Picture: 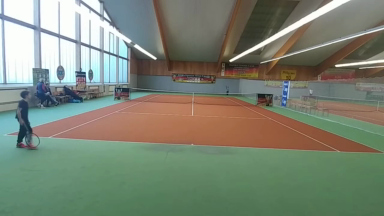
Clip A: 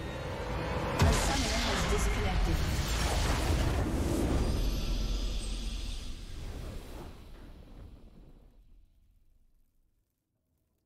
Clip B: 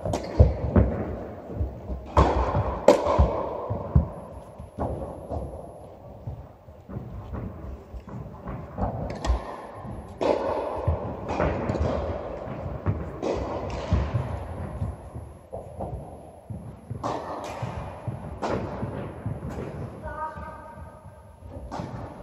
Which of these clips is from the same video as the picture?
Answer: B